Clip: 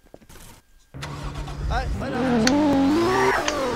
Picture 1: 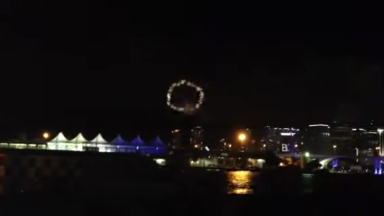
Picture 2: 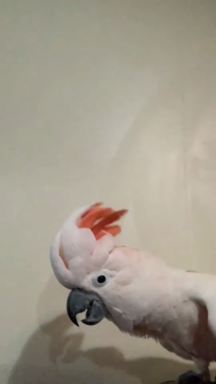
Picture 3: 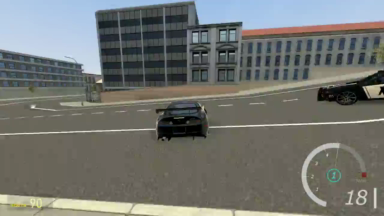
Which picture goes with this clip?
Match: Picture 3